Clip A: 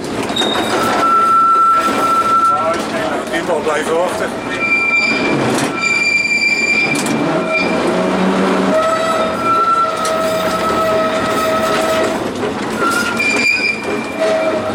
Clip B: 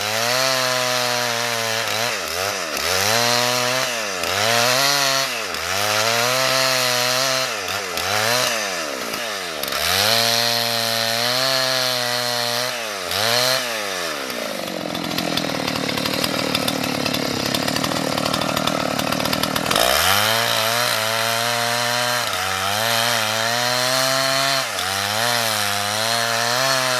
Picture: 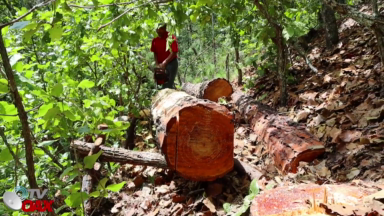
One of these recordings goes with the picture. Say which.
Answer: B